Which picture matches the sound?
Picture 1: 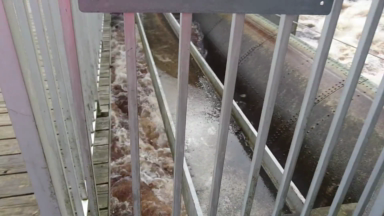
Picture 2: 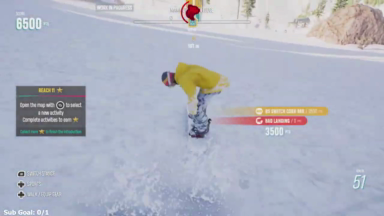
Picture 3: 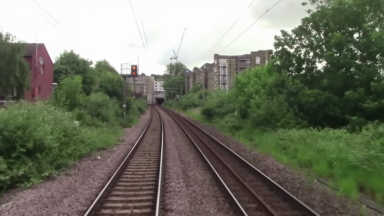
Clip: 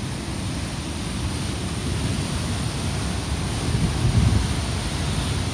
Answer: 1